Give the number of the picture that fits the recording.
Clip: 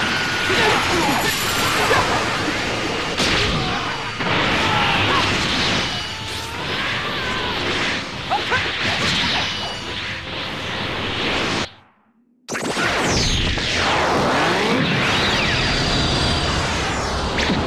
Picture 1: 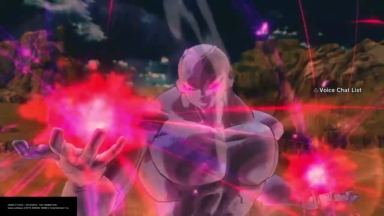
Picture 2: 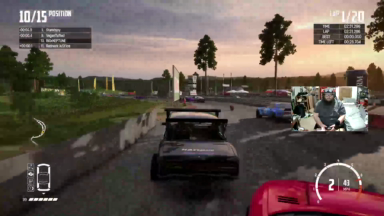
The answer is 1